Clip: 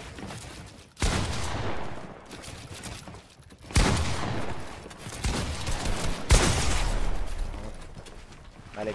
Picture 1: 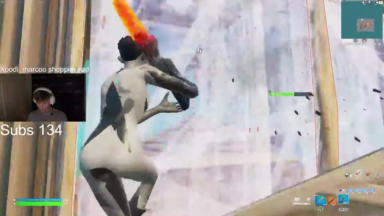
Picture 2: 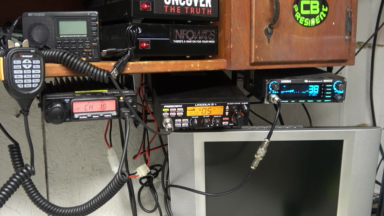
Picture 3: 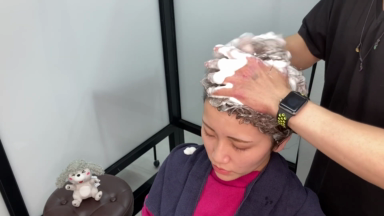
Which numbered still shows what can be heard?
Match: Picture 1